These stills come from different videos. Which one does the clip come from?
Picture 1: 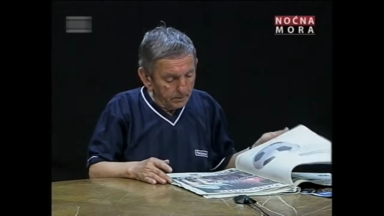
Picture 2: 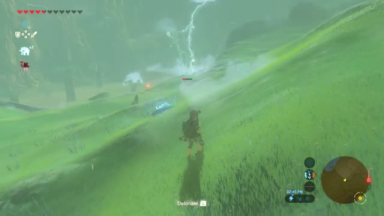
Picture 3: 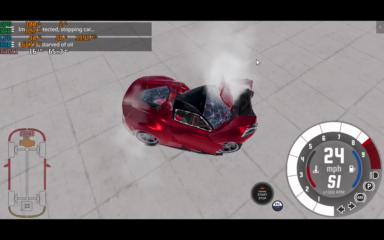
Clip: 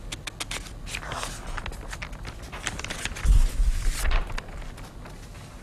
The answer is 1